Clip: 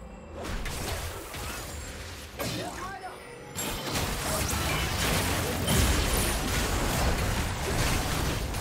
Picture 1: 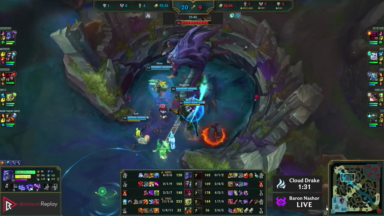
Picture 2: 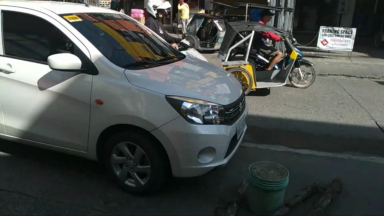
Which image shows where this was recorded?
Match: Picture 1